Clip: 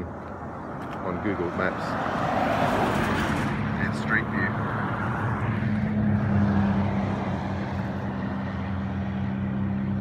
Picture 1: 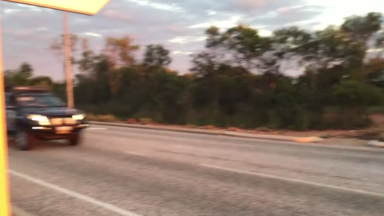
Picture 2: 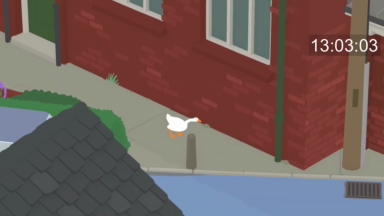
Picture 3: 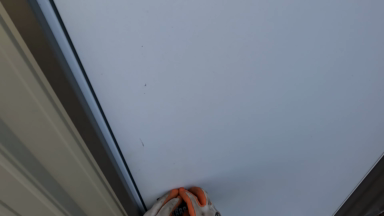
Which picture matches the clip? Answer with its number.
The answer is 1